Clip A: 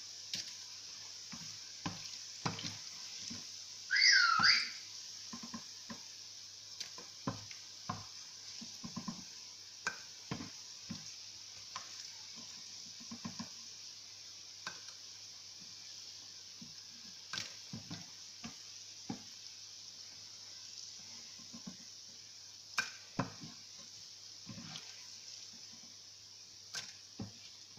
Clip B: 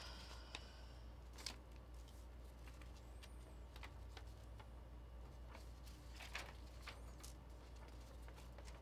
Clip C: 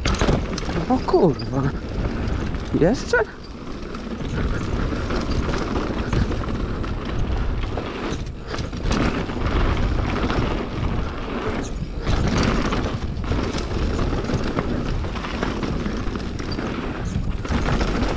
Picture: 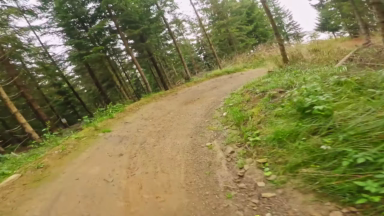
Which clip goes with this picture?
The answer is C